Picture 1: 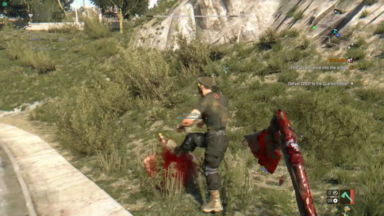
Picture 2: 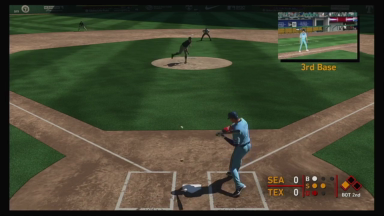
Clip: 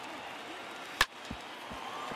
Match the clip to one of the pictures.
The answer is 2